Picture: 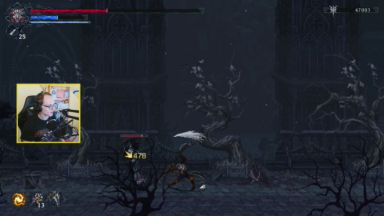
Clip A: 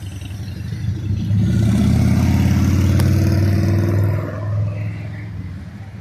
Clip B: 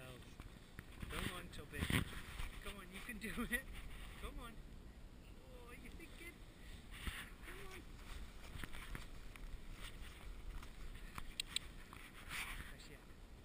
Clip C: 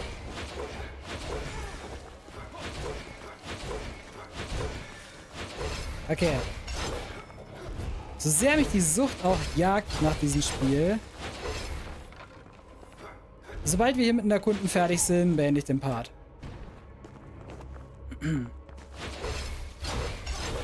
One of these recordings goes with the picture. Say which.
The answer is C